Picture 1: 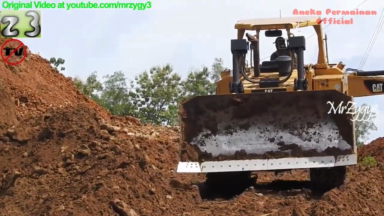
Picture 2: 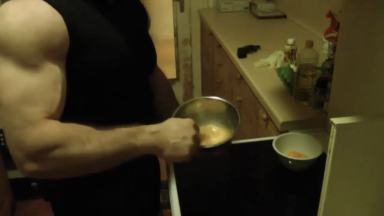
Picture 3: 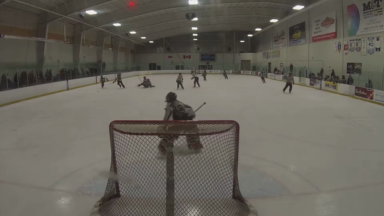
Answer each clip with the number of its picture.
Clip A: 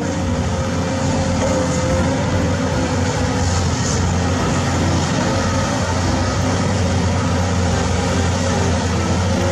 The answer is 1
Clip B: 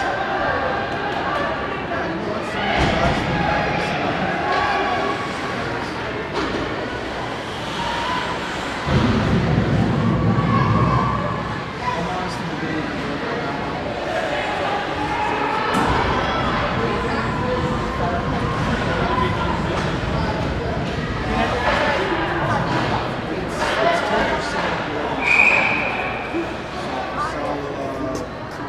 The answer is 3